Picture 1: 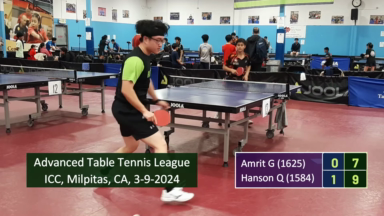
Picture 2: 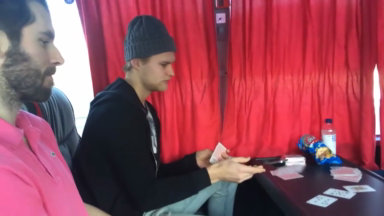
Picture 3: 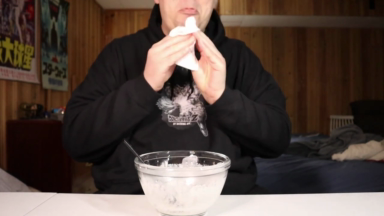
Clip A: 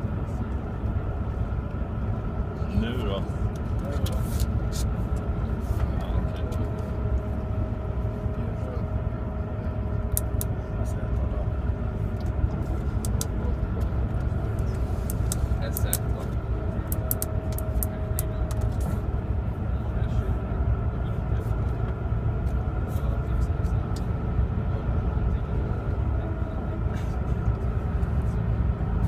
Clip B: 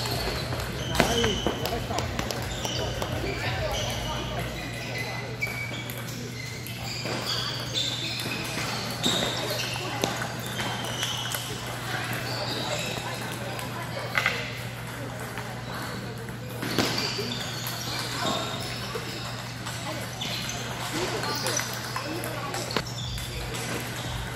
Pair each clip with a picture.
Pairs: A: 2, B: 1